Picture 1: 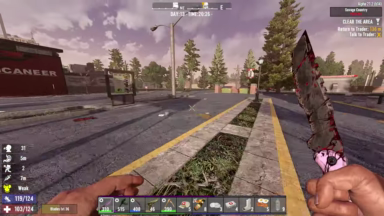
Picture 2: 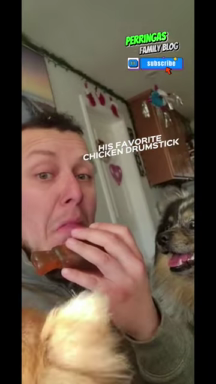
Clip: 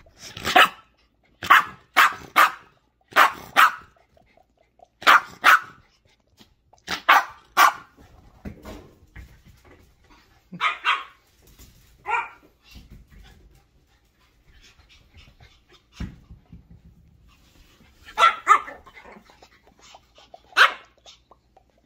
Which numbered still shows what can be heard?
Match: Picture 2